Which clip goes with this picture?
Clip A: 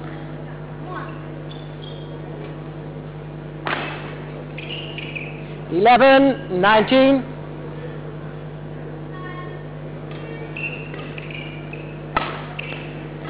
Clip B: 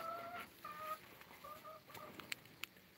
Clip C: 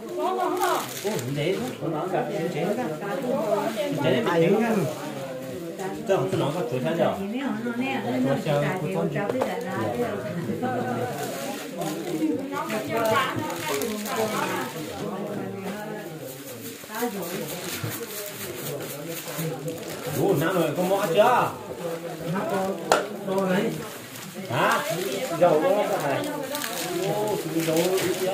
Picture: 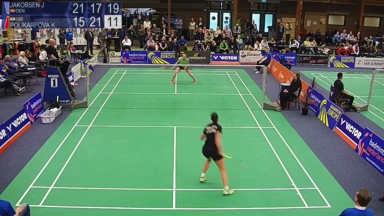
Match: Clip A